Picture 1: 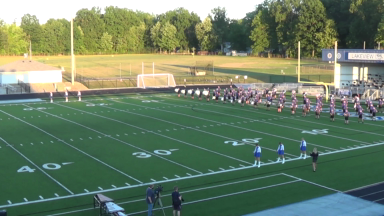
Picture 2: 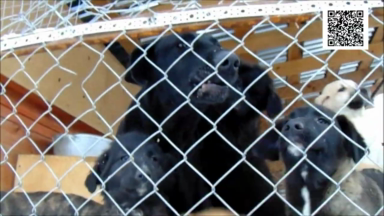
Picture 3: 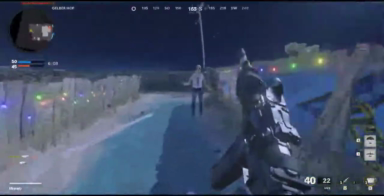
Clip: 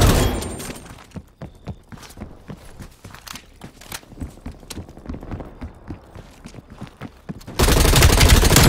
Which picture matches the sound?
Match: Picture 3